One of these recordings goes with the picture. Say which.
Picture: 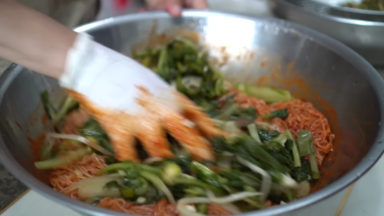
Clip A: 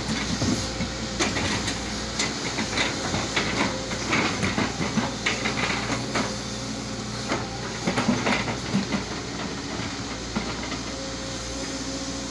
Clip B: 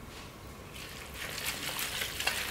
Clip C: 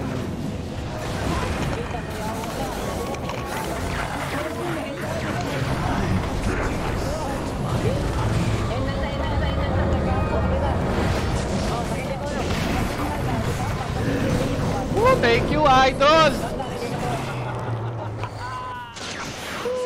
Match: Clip B